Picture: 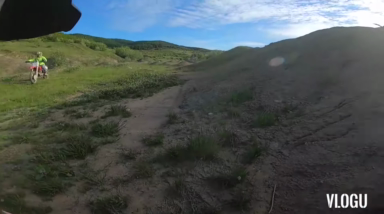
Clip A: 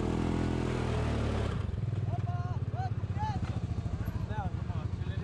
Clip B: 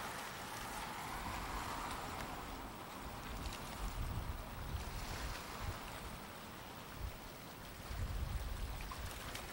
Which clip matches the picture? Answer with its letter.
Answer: A